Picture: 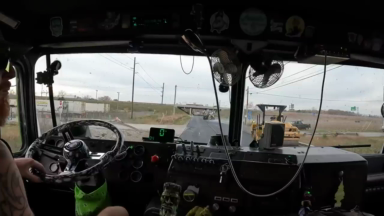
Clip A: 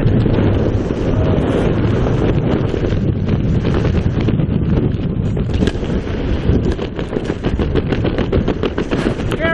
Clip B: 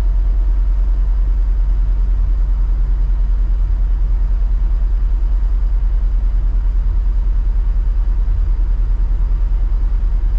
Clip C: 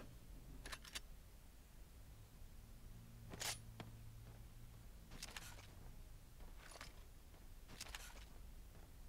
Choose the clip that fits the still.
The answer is B